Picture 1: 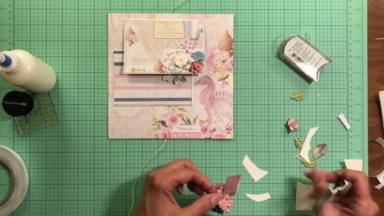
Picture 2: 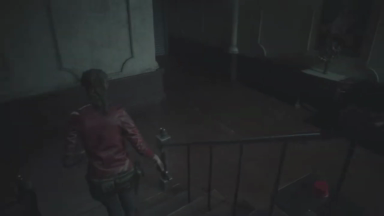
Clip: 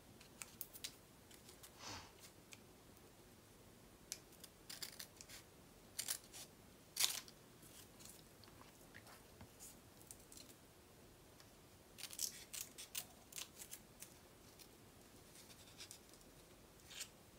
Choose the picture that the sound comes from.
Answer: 1